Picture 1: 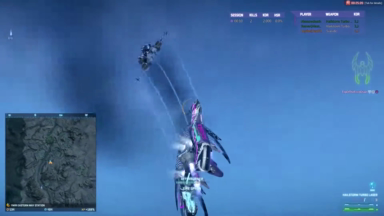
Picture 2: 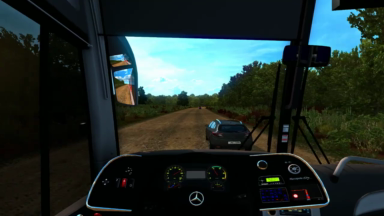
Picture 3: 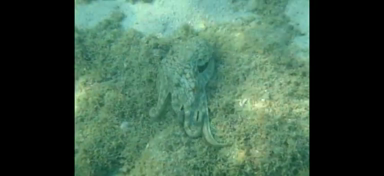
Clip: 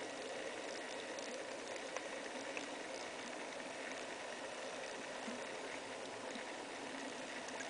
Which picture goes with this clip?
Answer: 3